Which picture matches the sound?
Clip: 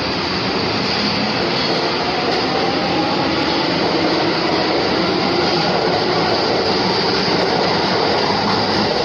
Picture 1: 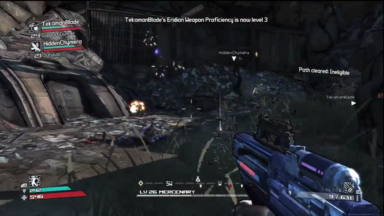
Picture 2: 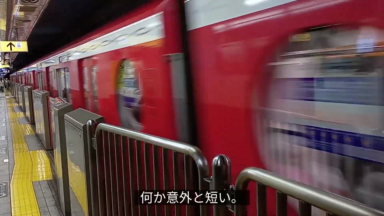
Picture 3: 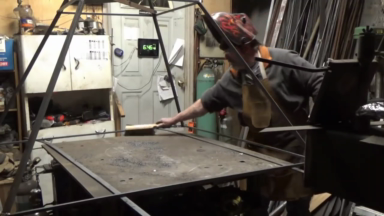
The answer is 2